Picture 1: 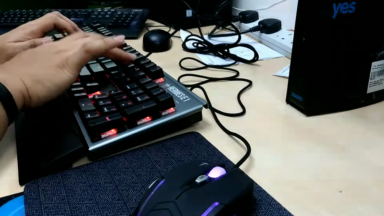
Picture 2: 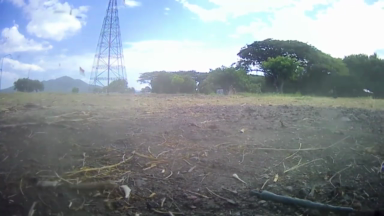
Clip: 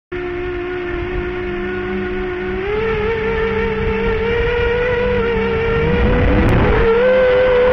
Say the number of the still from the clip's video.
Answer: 2